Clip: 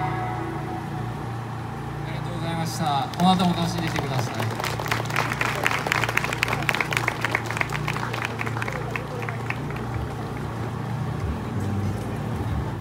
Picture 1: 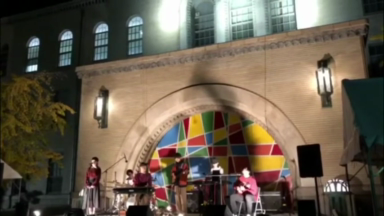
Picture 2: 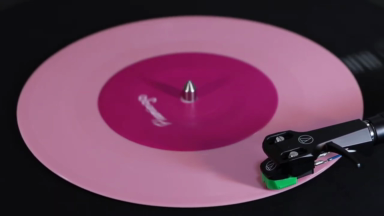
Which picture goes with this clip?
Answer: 1